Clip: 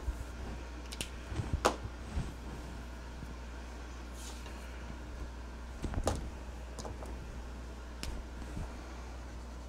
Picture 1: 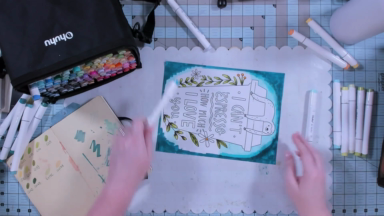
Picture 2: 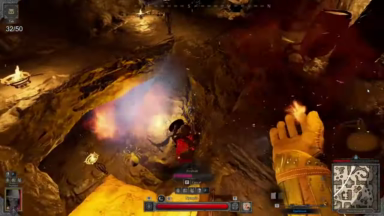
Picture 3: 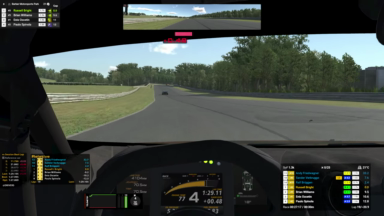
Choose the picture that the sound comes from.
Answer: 1